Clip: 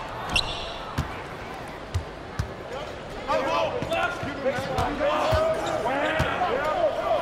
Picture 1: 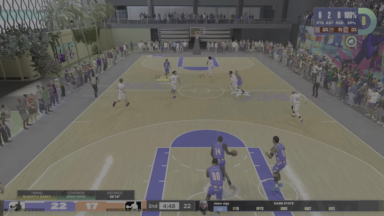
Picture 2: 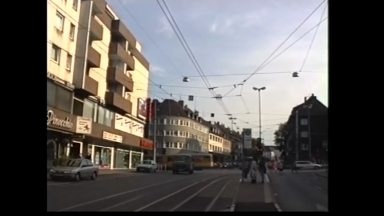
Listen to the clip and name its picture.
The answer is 1